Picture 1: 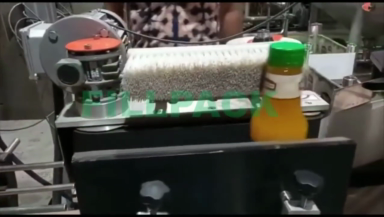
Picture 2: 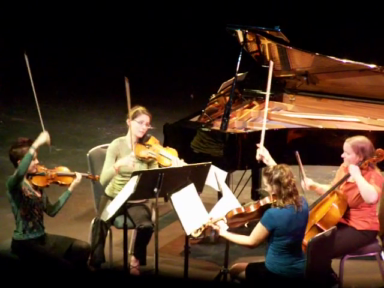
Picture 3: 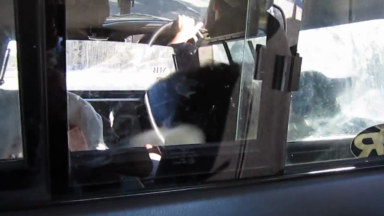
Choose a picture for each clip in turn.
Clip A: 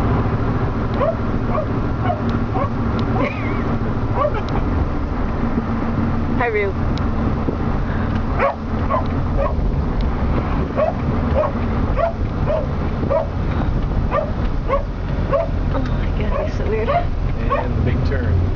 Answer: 3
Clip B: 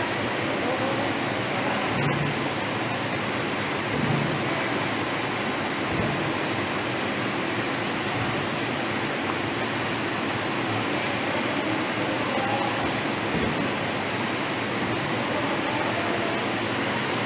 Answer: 1